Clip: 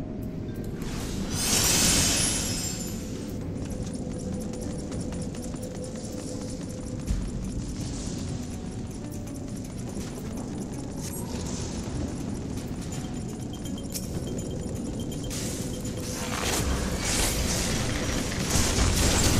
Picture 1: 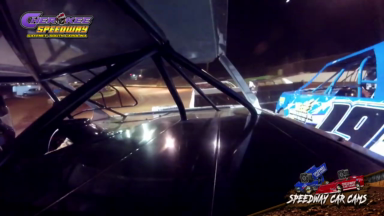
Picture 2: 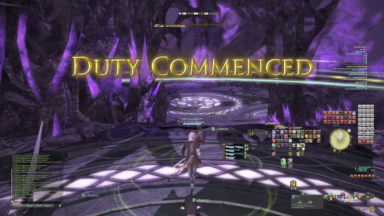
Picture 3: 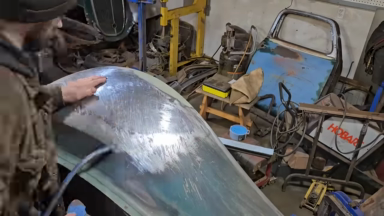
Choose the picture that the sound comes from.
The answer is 2